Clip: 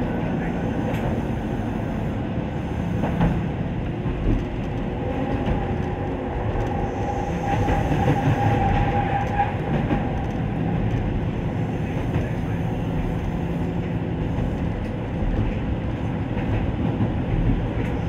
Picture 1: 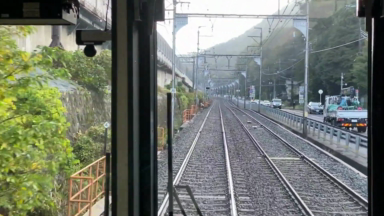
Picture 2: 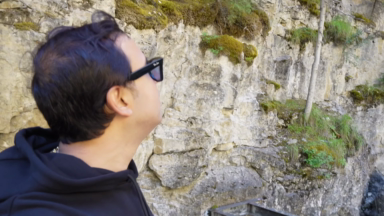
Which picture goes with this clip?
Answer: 1